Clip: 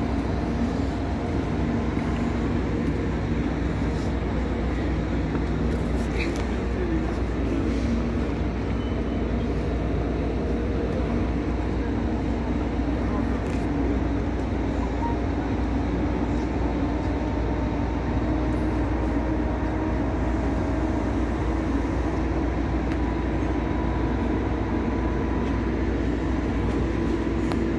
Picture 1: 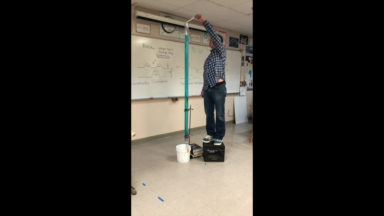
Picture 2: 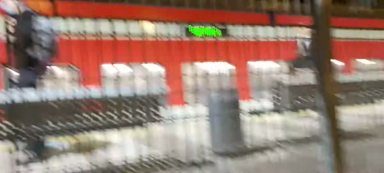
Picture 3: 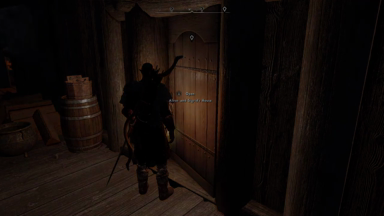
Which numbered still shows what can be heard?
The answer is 2